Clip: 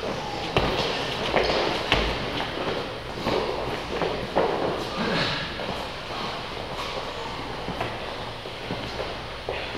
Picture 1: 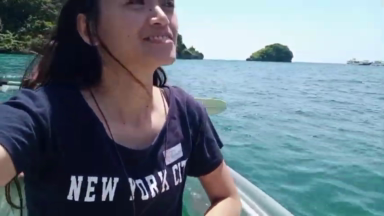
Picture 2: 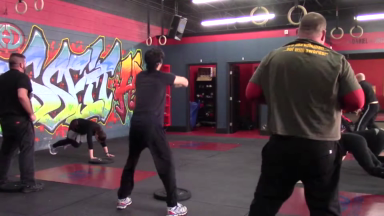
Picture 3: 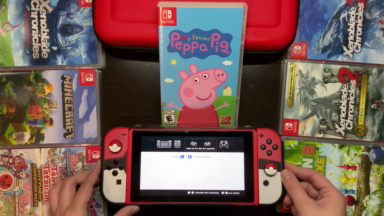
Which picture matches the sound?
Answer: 2